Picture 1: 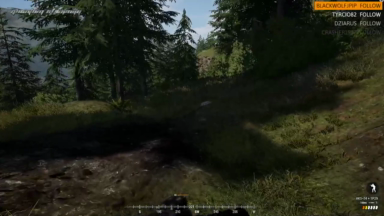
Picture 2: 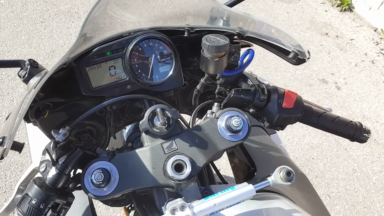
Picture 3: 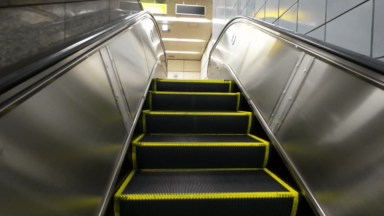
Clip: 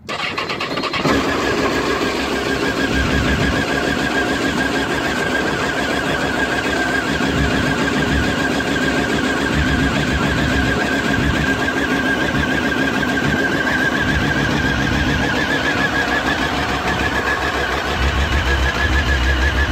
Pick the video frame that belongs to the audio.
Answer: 2